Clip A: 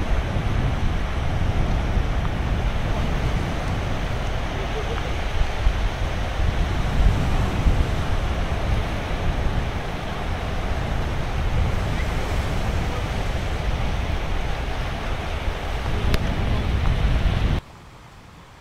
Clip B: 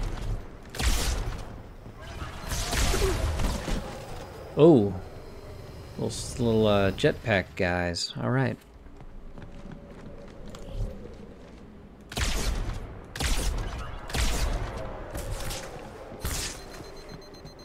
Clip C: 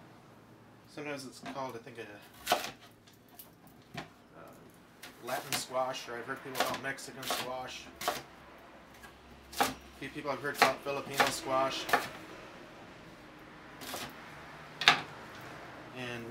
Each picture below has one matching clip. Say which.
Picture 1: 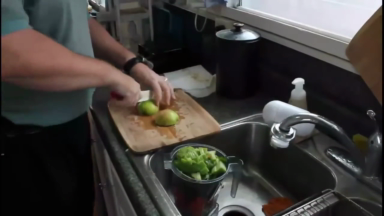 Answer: C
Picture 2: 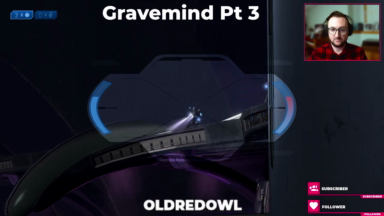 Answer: B